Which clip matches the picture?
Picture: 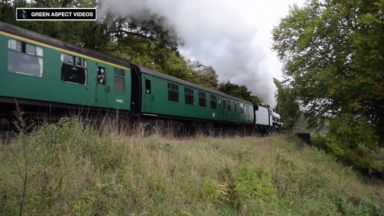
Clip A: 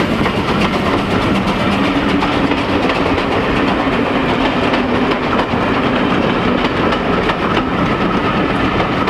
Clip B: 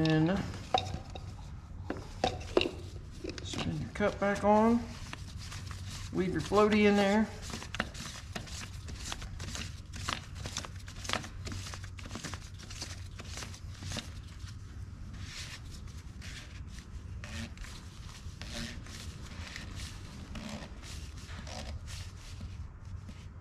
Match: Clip A